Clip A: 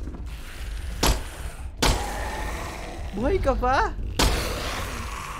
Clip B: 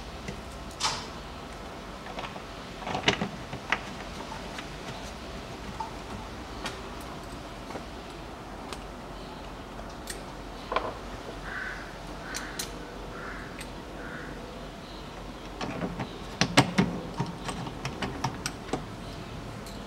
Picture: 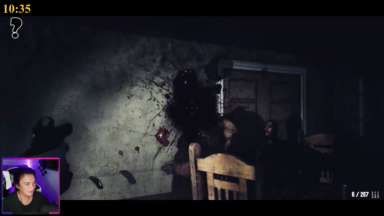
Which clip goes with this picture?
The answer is A